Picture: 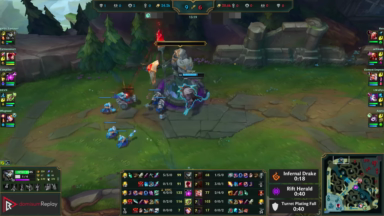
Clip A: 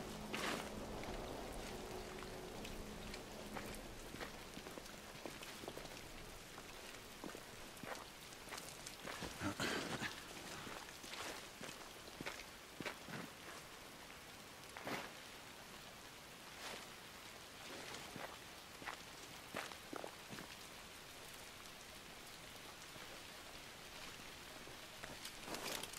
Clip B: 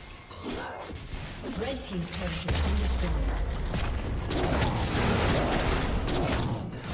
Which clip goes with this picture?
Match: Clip B